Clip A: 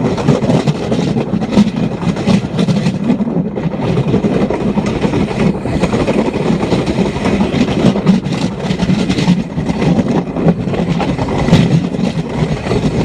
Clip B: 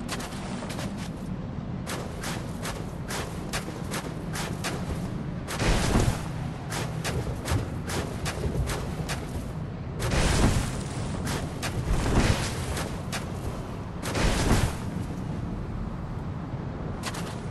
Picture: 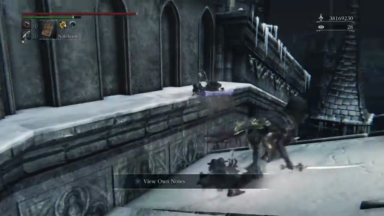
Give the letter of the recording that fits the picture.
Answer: B